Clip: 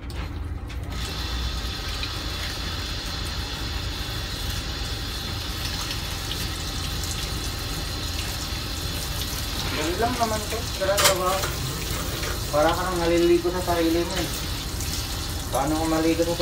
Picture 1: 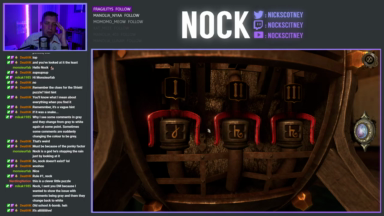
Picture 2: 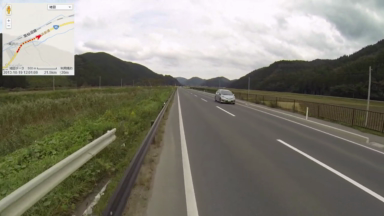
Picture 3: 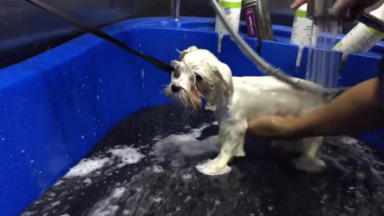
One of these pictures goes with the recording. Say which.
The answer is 3